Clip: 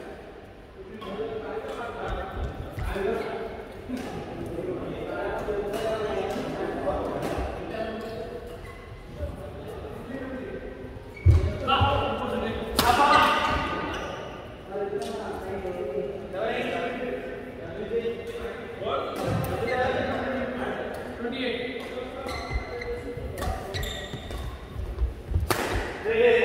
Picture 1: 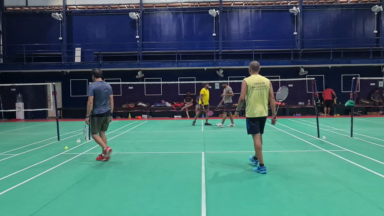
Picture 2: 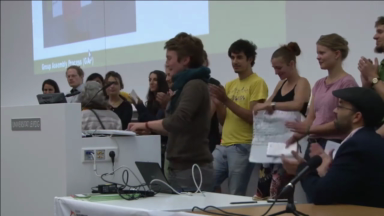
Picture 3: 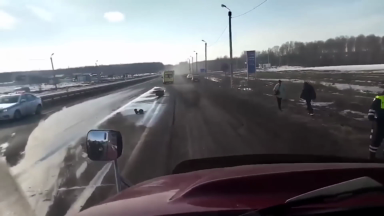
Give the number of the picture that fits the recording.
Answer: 1